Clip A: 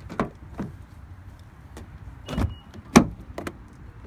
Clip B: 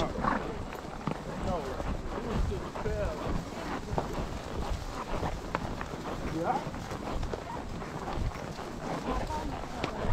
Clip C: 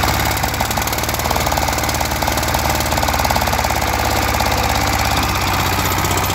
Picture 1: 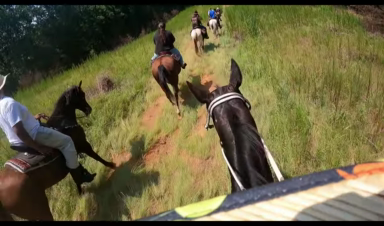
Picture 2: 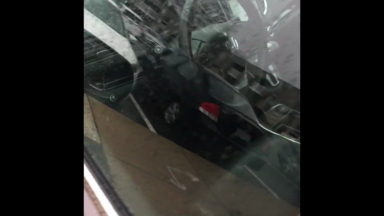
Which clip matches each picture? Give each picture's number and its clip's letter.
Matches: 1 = B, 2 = A